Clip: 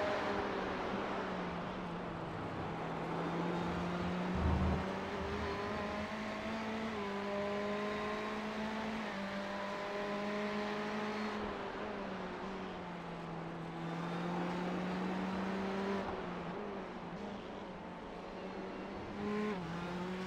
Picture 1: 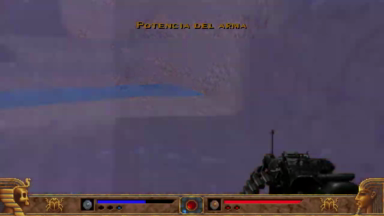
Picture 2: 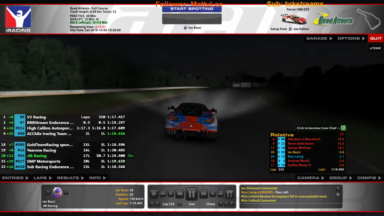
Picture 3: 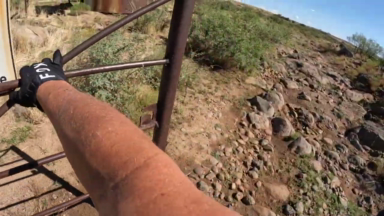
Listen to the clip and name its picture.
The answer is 2